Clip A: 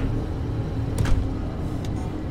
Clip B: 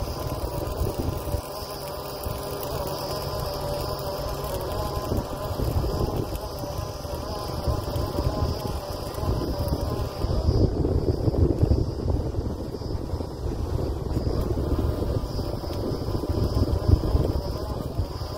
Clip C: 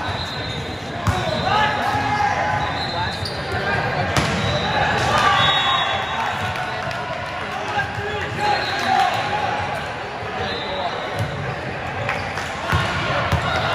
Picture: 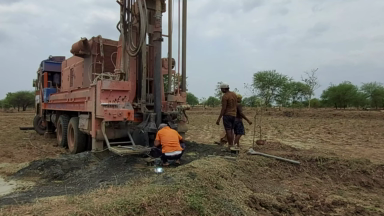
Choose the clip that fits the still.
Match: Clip B